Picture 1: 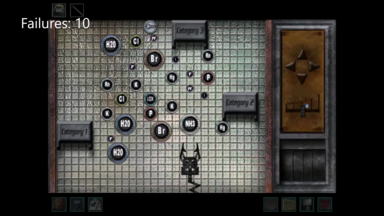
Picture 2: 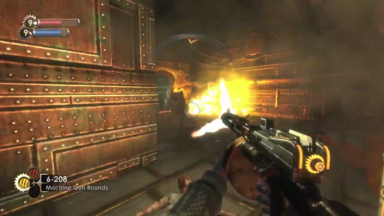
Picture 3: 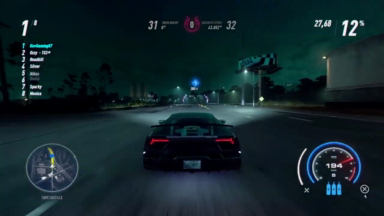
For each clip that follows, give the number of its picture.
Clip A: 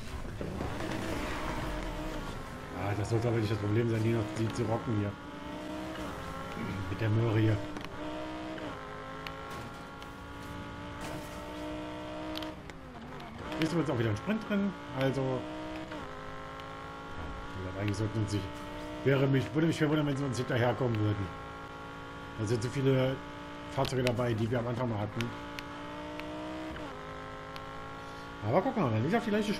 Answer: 3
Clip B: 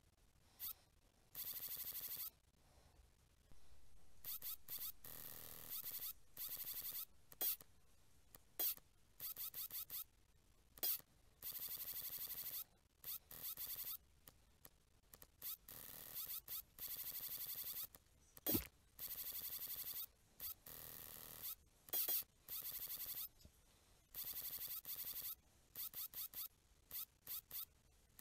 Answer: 1